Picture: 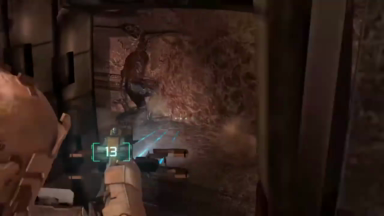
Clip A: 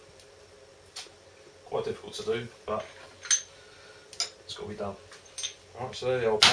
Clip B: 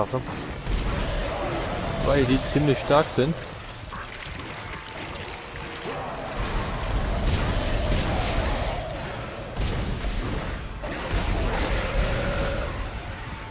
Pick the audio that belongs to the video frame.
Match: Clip B